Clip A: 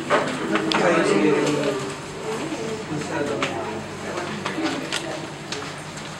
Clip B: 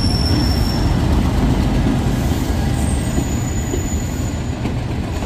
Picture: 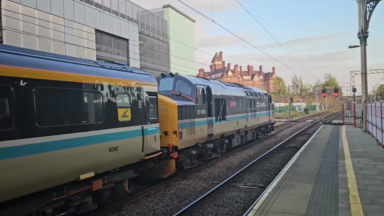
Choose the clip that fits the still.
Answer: B